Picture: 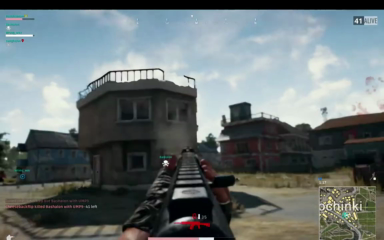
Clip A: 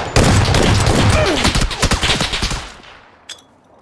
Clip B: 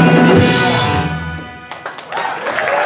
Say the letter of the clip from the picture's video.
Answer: A